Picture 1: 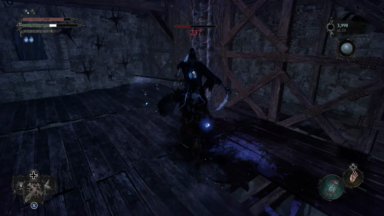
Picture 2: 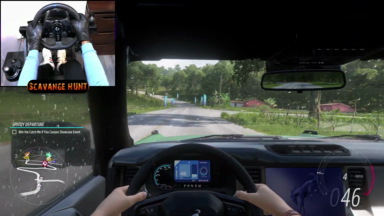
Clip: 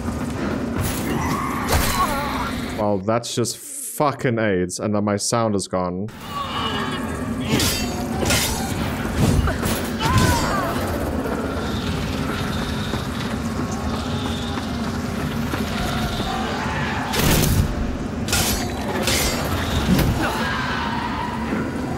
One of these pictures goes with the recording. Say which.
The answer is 1